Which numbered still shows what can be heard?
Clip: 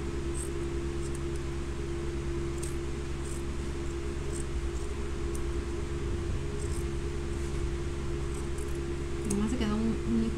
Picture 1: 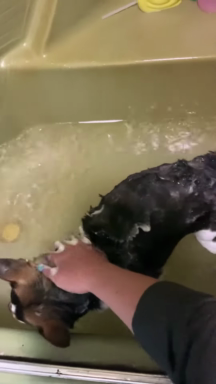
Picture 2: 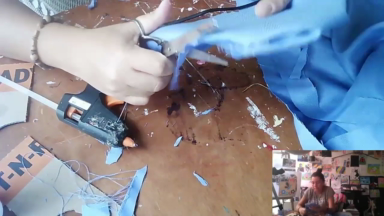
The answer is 2